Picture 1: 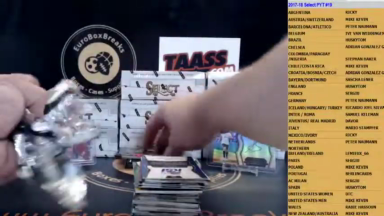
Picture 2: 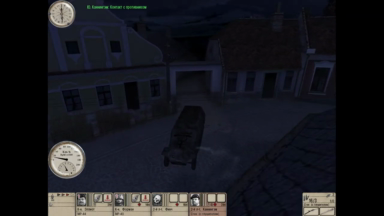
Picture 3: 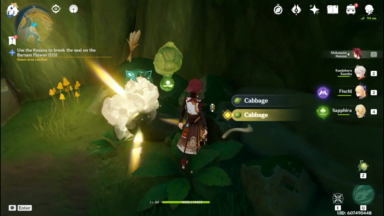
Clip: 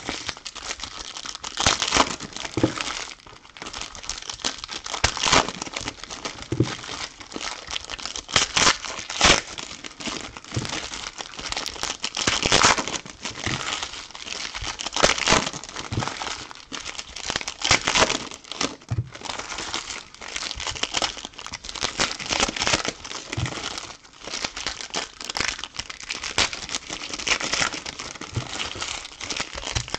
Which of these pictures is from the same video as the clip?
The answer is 1